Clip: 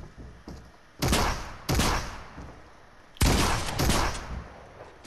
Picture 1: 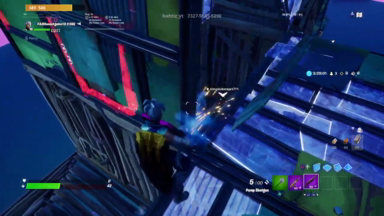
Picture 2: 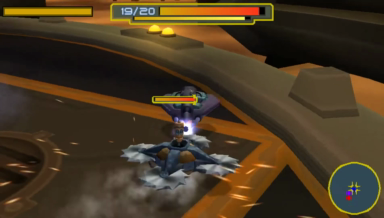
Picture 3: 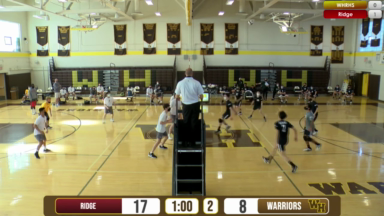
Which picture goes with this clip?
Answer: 1